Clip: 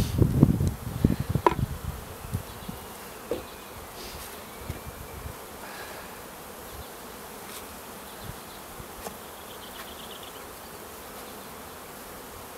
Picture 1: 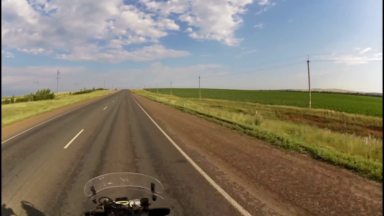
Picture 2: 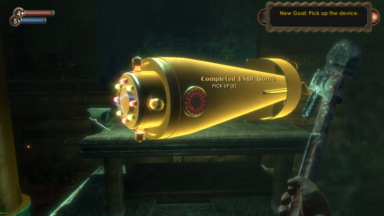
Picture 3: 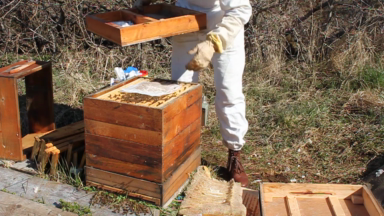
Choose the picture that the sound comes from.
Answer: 3